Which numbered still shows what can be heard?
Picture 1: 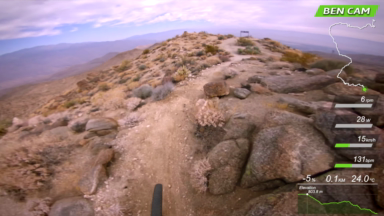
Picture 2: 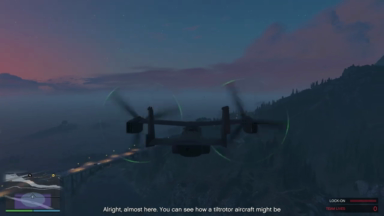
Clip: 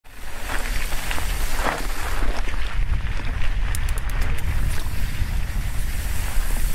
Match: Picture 1